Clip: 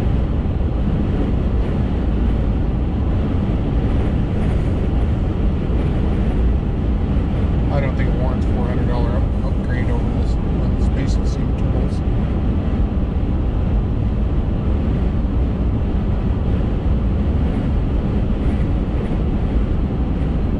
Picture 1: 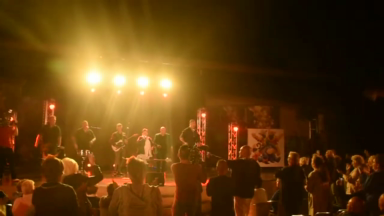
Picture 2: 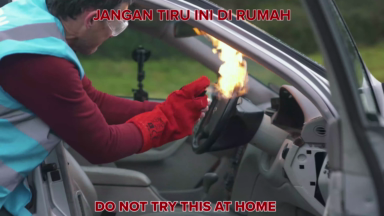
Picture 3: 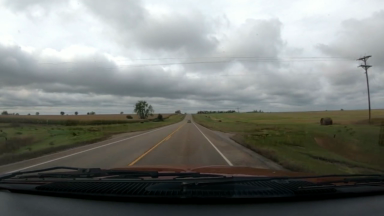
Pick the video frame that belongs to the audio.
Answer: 3